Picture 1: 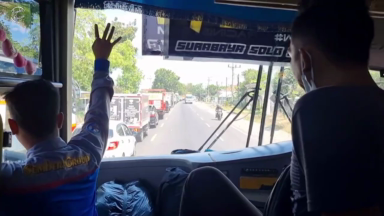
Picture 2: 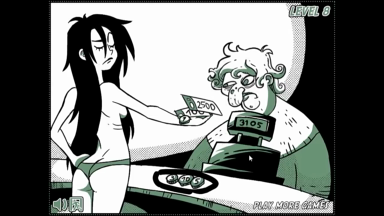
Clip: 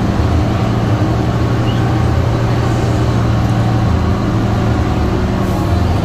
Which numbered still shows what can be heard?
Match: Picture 1